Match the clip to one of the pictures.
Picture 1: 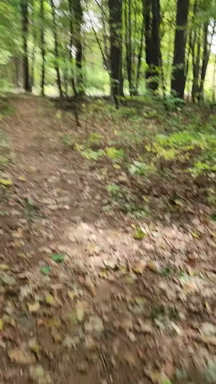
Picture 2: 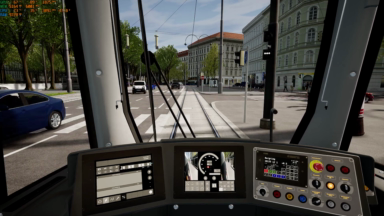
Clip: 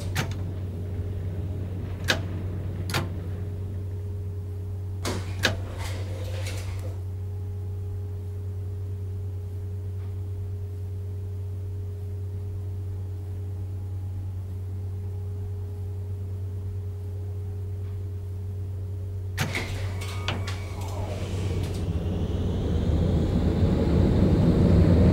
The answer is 2